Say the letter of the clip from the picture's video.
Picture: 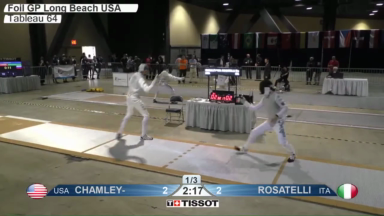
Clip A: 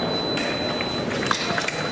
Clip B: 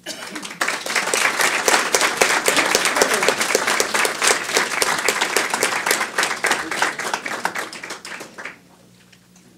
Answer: A